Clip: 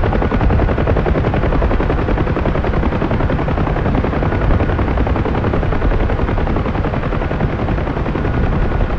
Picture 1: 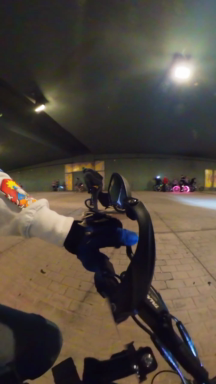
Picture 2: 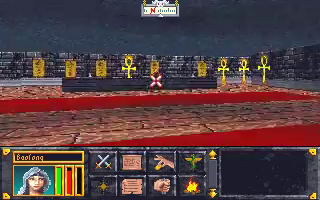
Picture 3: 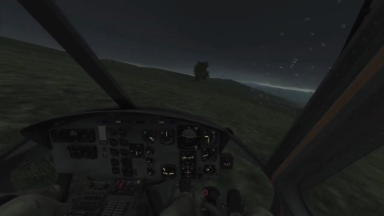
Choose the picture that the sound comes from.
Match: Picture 3